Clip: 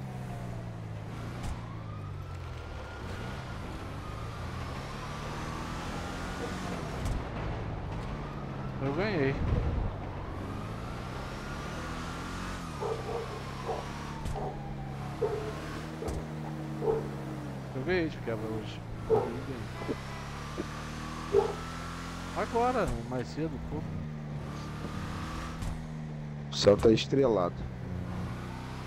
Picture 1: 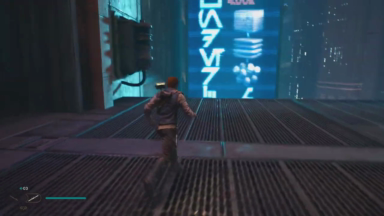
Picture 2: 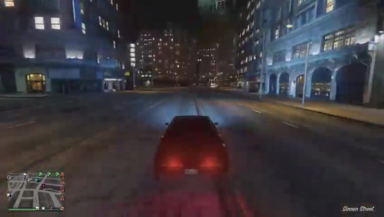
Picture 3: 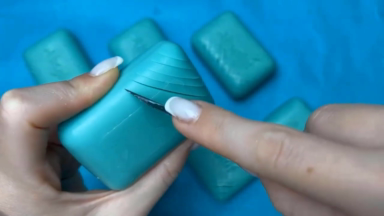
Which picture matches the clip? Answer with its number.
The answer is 2